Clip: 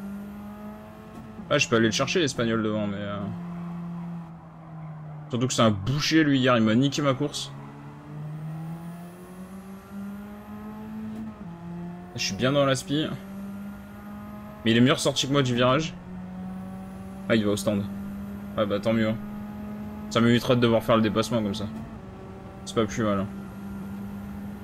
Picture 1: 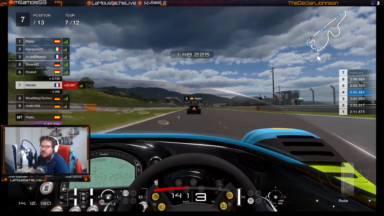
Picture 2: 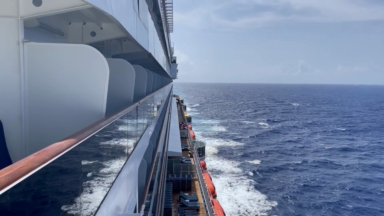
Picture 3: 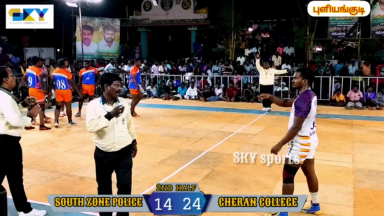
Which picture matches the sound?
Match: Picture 1